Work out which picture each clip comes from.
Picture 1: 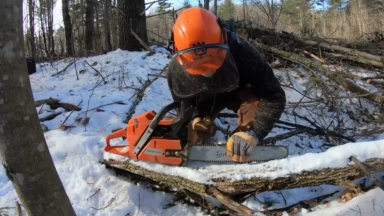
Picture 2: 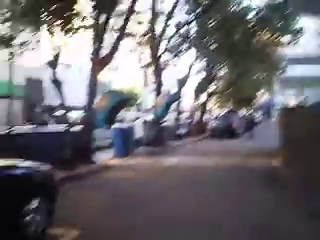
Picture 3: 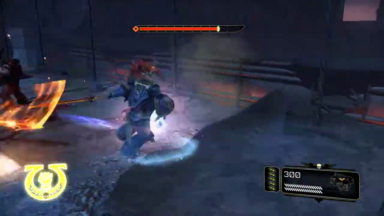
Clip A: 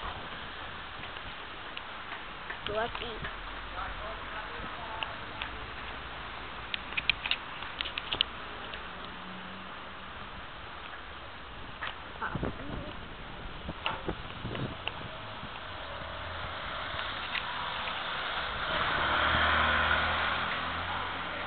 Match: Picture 2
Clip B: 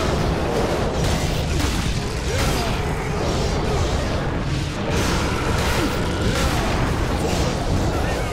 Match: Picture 3